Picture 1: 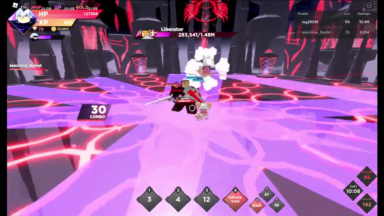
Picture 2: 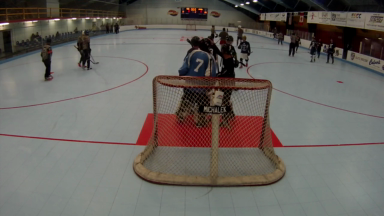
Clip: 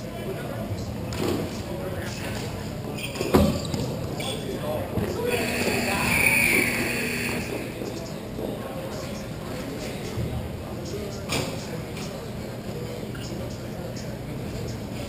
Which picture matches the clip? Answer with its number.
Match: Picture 2